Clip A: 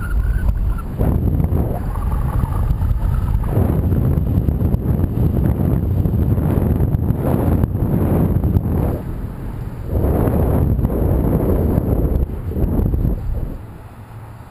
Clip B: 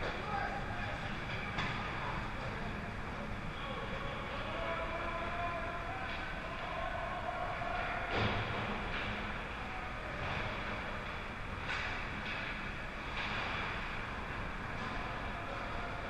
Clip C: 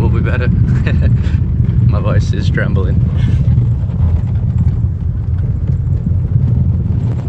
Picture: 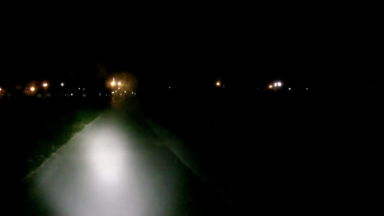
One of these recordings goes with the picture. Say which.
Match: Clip A